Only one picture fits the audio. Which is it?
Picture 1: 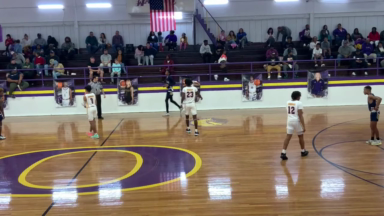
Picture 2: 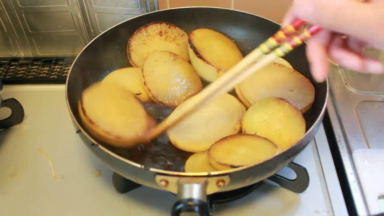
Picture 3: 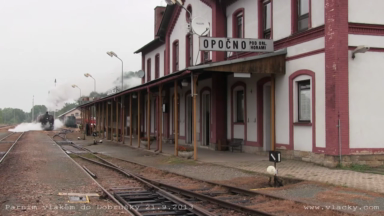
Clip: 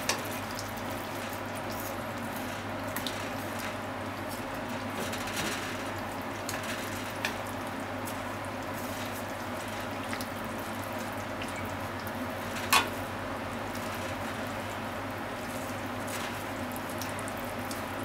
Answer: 2